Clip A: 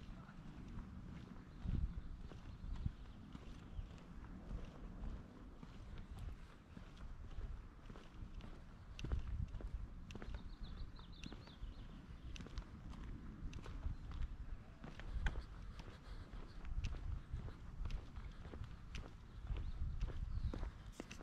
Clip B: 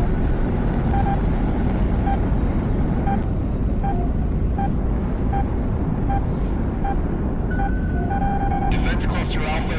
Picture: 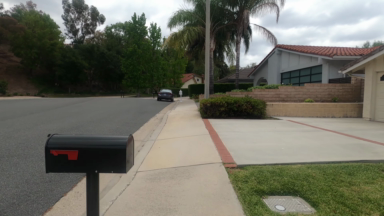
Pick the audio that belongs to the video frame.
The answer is A